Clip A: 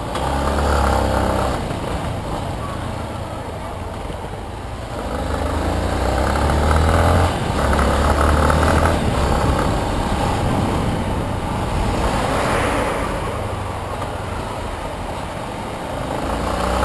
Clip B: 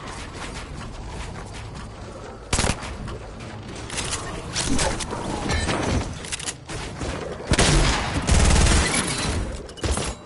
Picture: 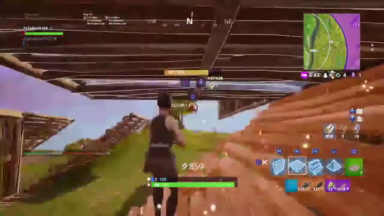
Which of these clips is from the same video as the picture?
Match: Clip B